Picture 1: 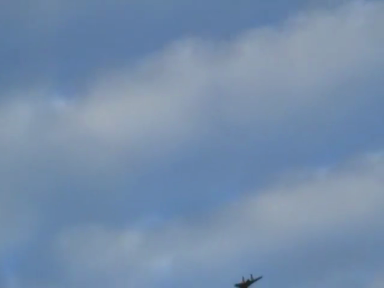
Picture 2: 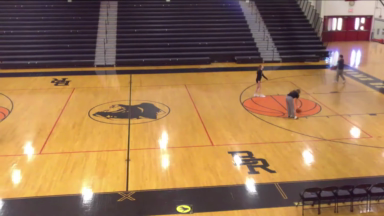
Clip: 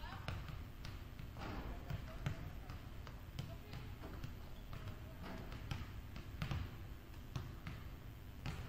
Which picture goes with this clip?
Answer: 2